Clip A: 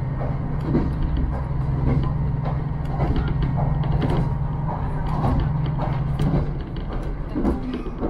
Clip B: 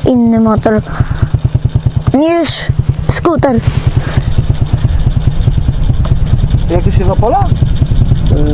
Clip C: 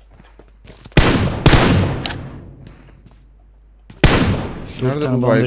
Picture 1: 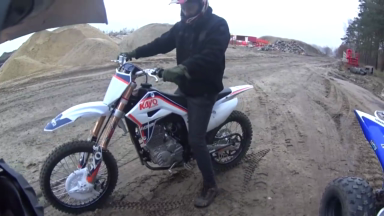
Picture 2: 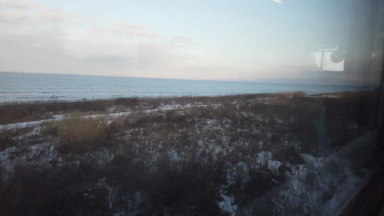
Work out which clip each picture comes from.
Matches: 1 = B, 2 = A